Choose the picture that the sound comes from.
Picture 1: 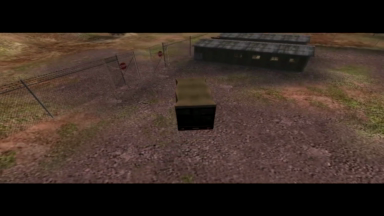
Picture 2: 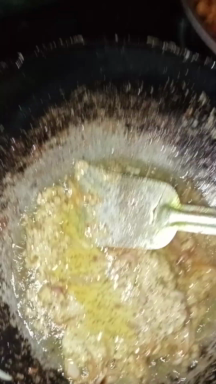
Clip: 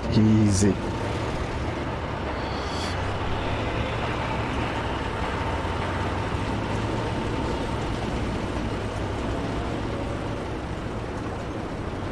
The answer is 1